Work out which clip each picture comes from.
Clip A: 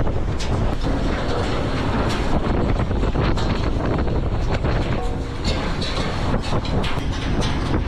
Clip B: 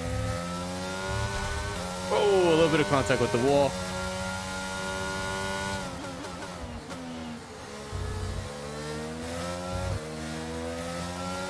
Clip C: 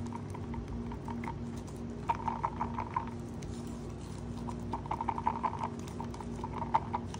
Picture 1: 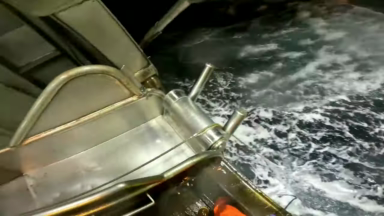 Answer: A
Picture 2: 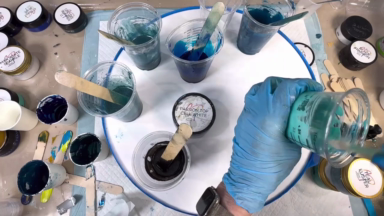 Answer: C